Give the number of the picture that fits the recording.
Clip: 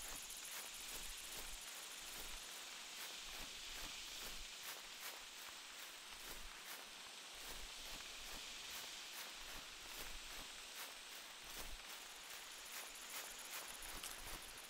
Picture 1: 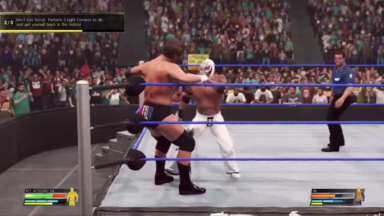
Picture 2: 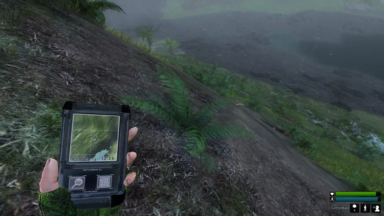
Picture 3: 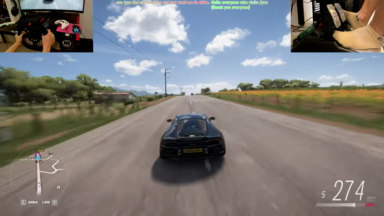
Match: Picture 2